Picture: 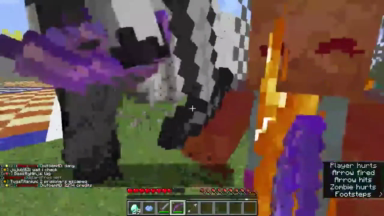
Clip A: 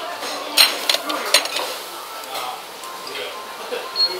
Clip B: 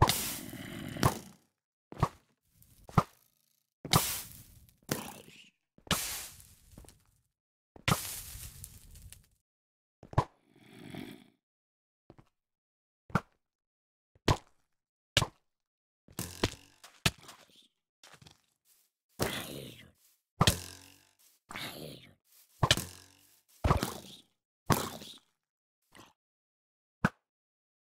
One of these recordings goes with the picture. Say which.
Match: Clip B